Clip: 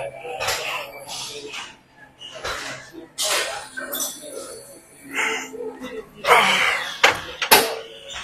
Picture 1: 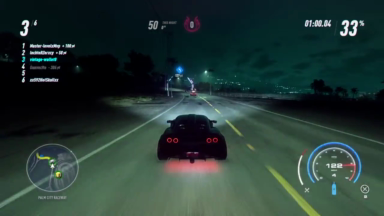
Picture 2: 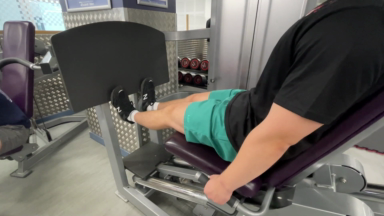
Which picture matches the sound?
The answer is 2